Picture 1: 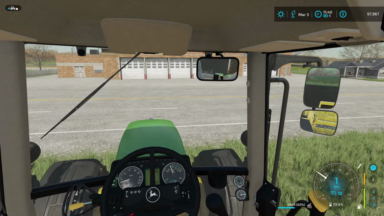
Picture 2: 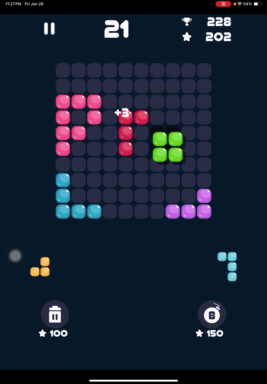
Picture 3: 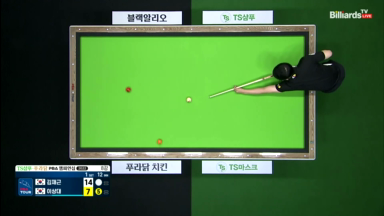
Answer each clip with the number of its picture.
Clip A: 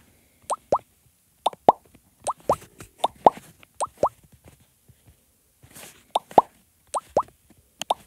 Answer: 2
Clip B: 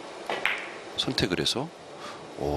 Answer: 3